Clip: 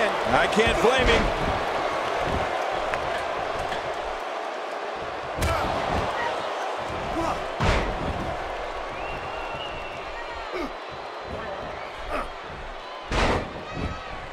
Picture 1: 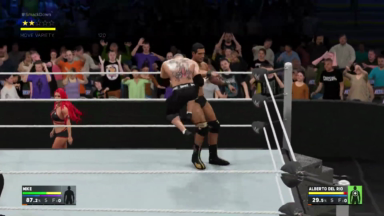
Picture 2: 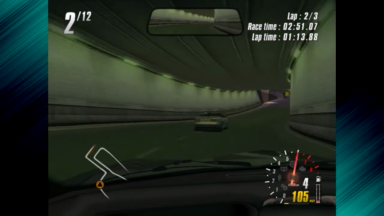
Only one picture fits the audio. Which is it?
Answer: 1